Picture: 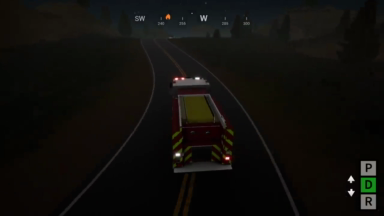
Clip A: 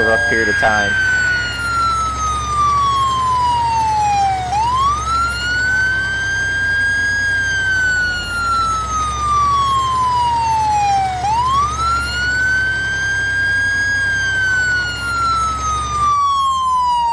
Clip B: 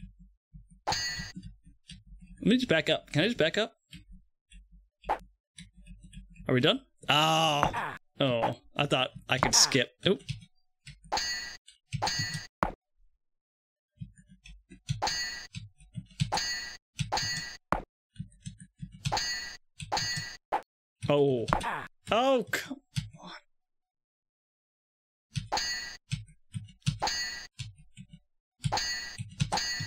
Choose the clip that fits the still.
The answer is A